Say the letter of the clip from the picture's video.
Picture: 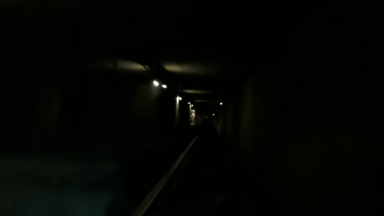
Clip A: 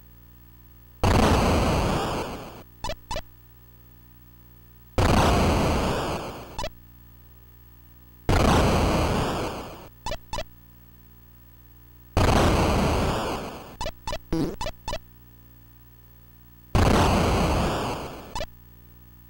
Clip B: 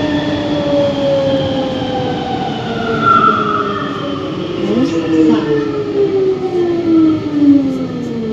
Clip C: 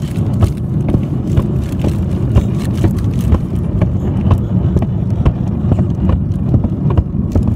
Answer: B